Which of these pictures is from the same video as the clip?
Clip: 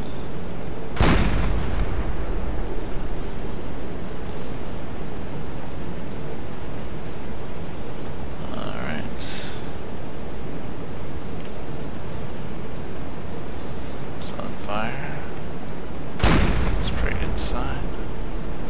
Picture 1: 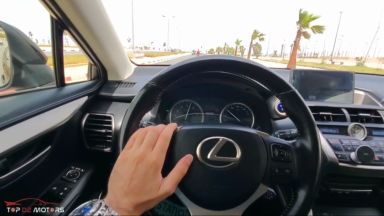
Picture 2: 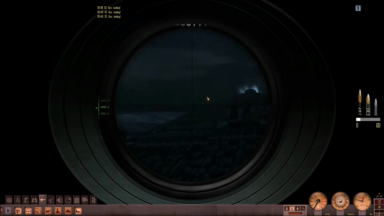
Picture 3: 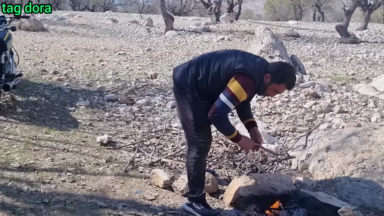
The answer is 2